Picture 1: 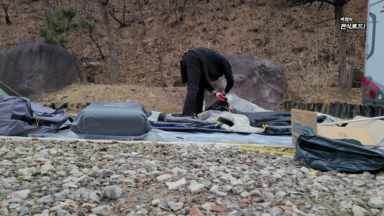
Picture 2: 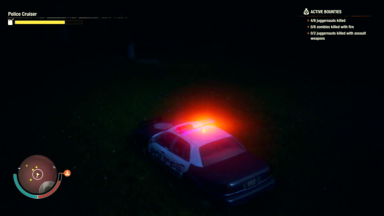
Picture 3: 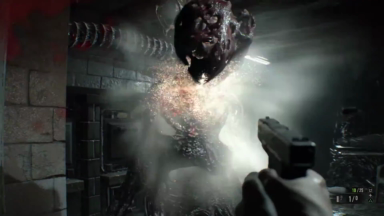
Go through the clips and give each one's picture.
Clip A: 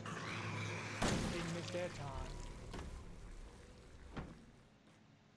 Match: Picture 3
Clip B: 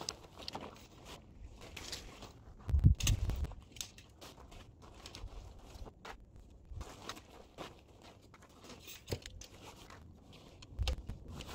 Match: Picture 1